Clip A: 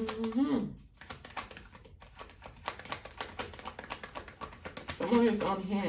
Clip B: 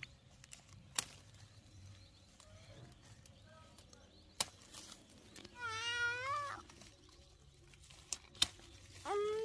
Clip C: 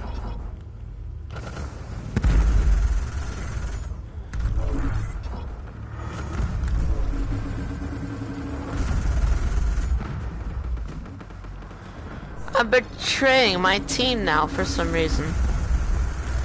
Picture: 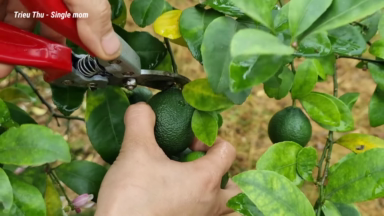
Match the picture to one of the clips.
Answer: B